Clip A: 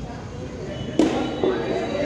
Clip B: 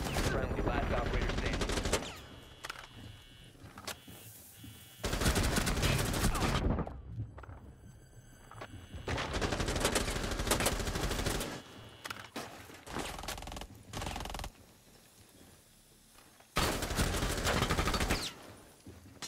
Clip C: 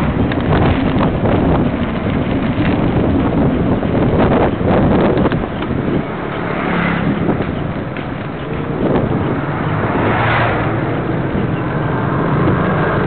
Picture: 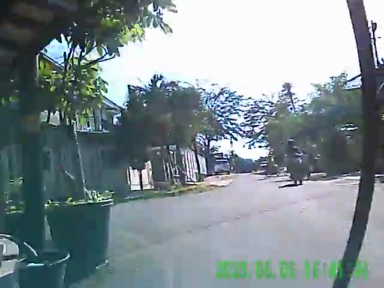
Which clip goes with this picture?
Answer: C